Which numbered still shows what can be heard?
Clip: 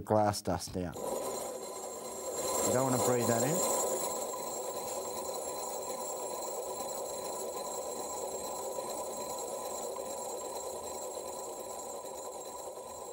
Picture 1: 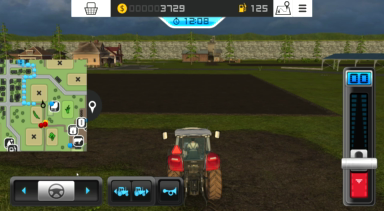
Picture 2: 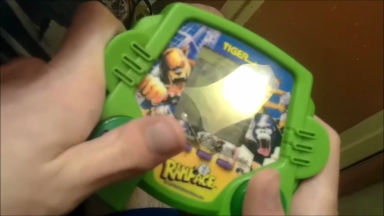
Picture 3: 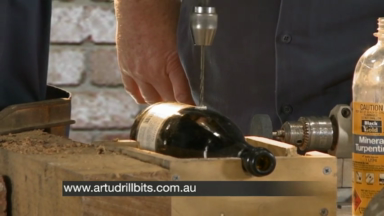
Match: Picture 3